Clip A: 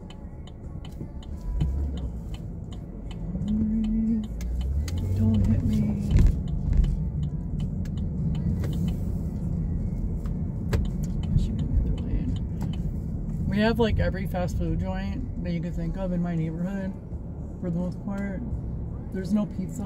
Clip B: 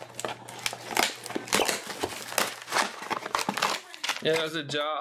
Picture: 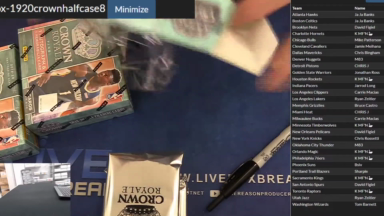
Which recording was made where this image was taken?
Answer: B